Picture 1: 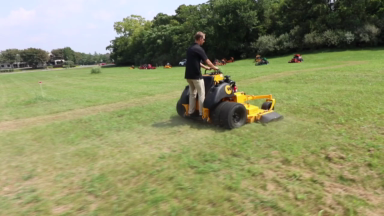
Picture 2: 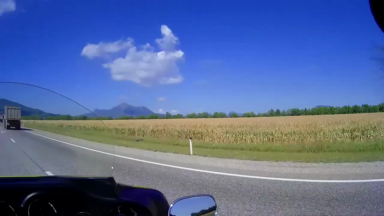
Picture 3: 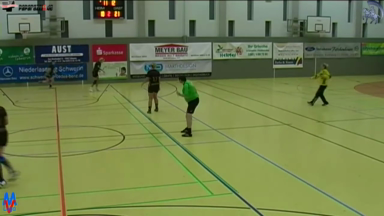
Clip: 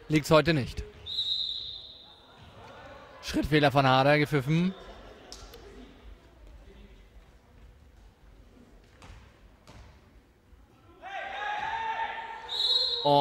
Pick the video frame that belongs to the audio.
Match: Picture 3